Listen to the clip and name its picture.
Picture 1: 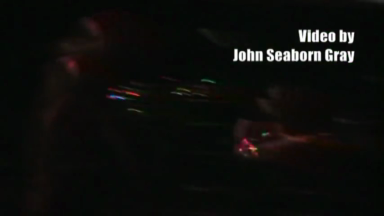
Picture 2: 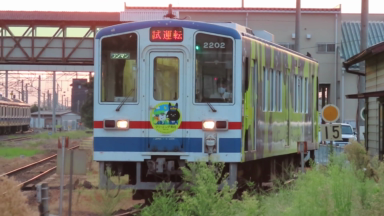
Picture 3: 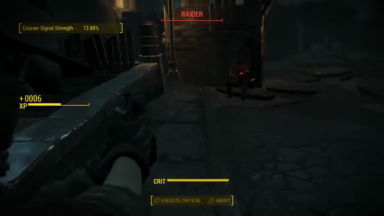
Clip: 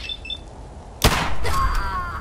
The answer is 3